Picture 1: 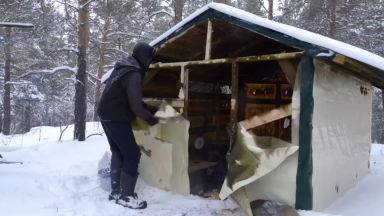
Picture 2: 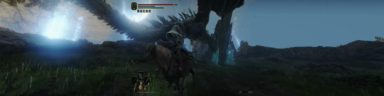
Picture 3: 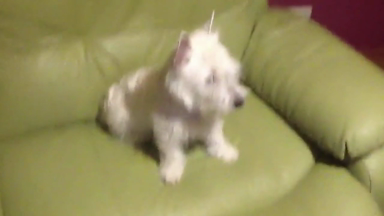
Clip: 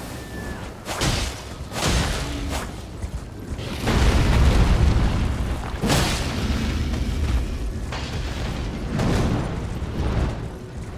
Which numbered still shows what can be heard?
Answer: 2